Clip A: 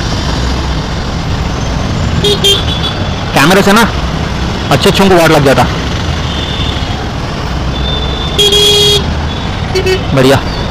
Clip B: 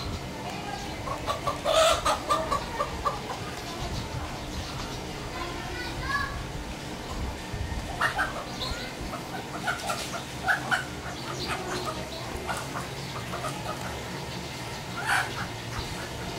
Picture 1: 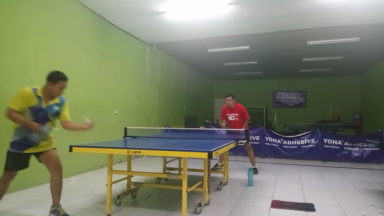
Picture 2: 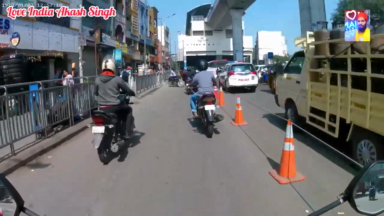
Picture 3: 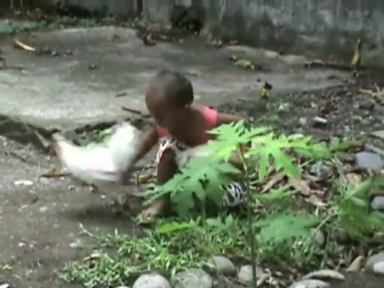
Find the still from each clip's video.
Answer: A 2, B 3